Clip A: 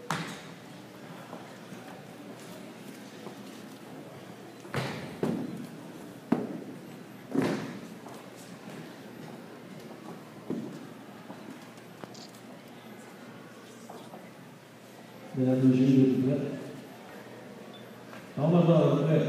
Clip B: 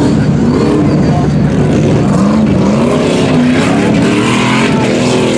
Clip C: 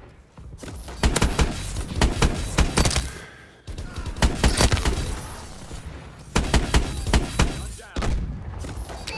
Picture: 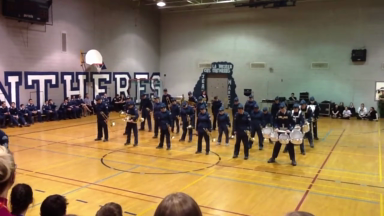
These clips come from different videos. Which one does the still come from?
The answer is A